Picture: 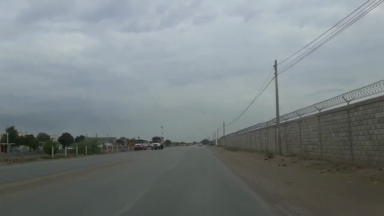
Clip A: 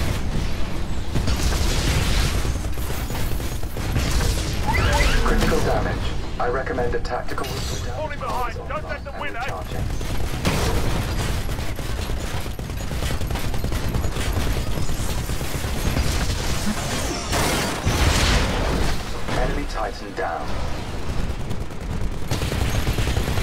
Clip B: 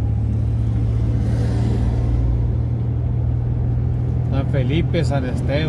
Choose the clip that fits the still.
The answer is B